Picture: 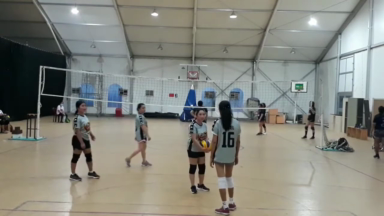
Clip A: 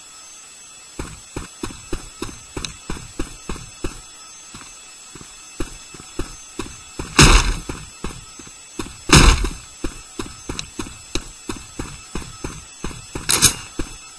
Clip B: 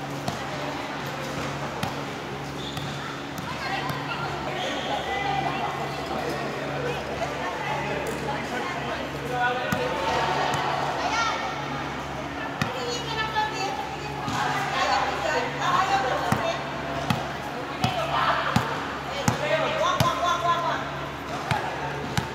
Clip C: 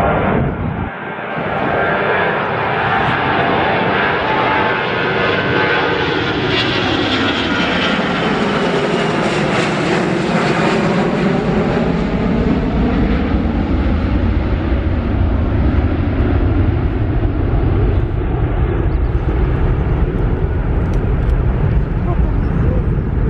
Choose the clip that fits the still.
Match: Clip B